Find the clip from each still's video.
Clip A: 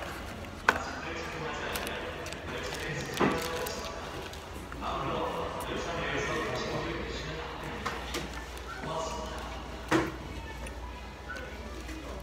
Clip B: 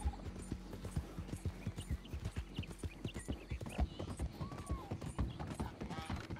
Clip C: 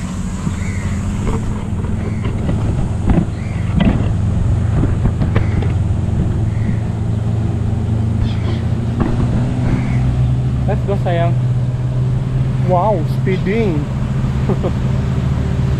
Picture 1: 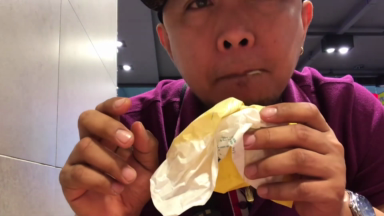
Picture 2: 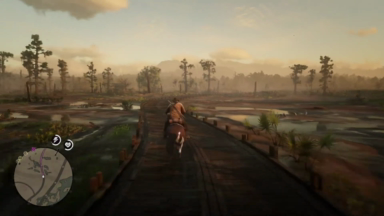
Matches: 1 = A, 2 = B